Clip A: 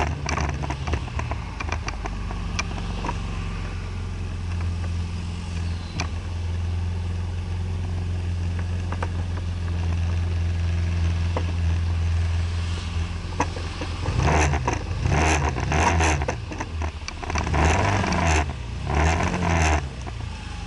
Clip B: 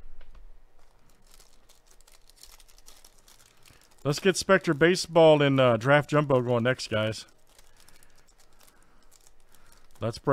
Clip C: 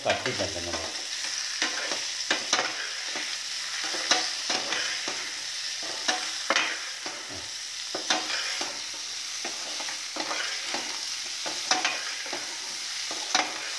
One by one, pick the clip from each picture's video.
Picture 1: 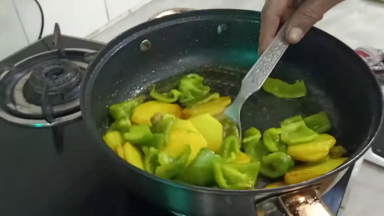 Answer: C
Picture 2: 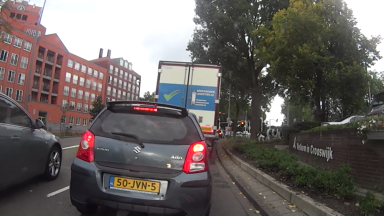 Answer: A